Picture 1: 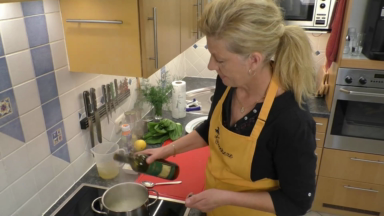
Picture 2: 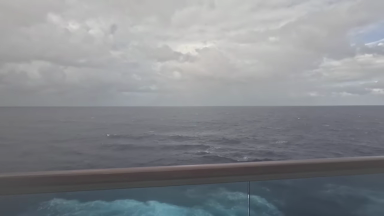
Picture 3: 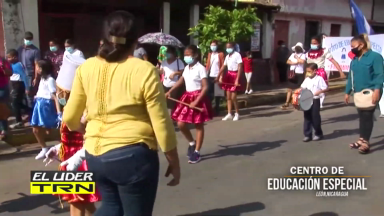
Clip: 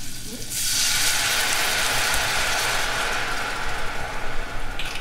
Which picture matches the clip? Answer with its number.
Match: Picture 1